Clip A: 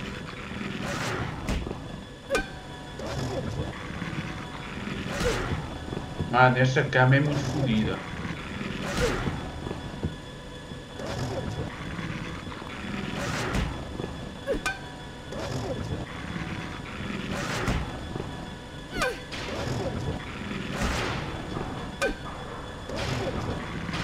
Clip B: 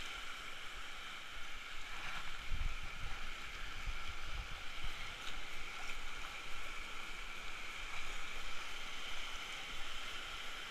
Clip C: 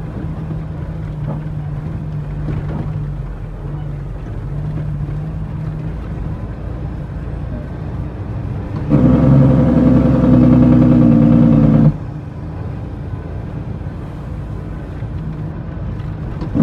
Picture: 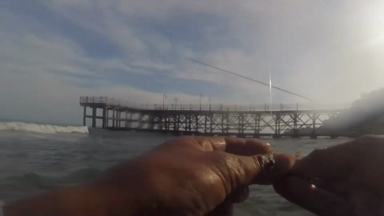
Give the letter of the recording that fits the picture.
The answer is B